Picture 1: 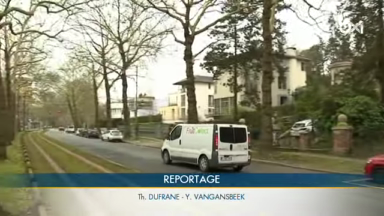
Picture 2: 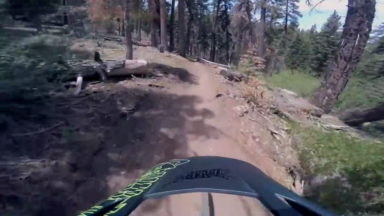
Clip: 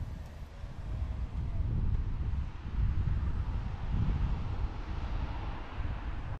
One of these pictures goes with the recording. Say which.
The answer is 1